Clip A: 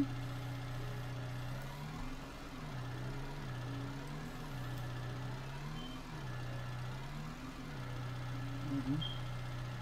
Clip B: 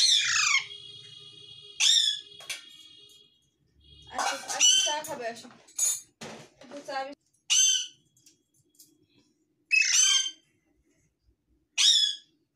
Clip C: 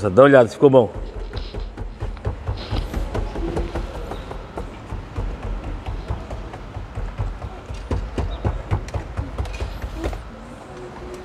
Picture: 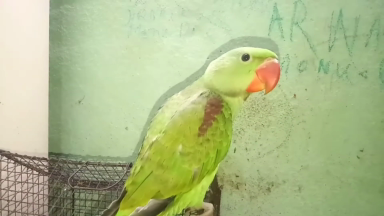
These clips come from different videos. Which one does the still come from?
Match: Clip B